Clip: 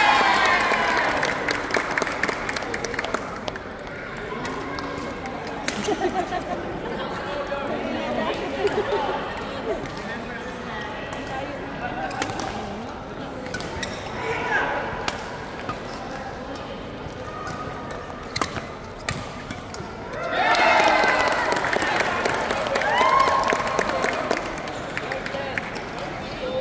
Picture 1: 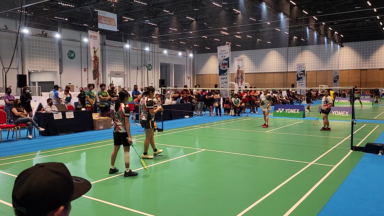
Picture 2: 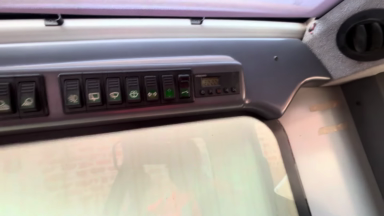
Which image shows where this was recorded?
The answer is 1